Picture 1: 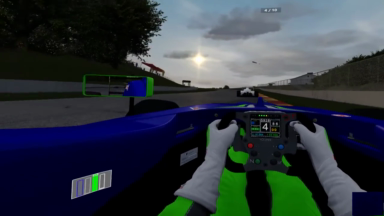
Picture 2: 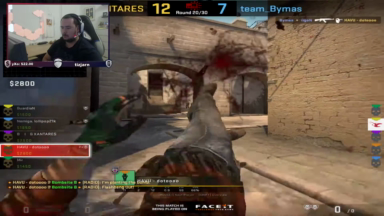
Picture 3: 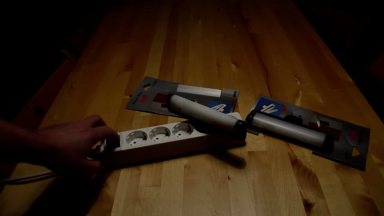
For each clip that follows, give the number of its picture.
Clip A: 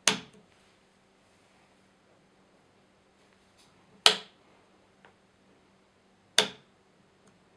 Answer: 3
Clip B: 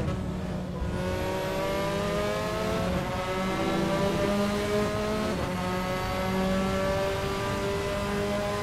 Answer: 1